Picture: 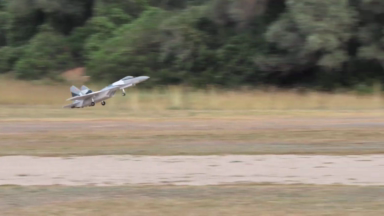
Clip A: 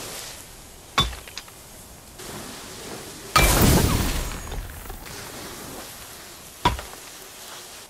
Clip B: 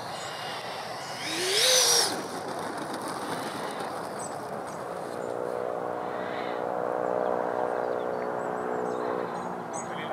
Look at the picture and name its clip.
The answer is B